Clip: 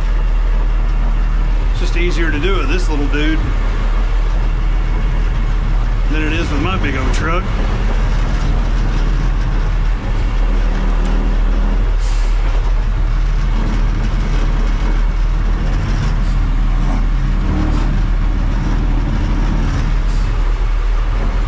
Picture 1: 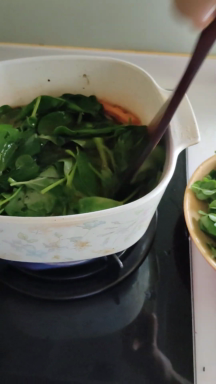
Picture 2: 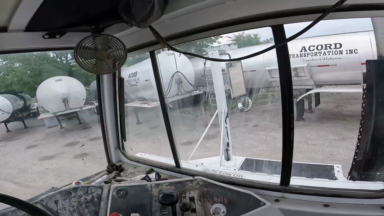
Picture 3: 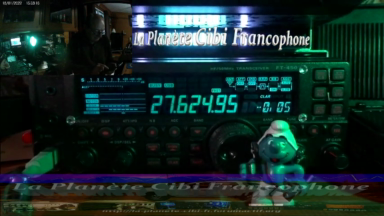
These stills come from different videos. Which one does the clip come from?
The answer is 2